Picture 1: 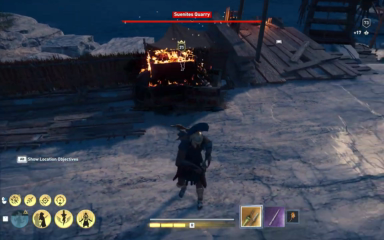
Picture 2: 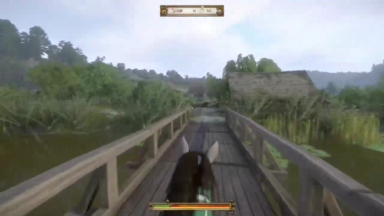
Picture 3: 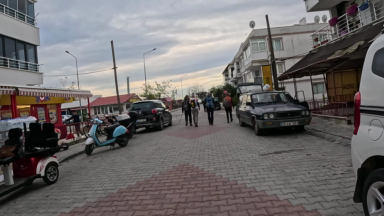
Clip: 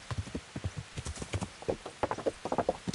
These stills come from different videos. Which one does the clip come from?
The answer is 2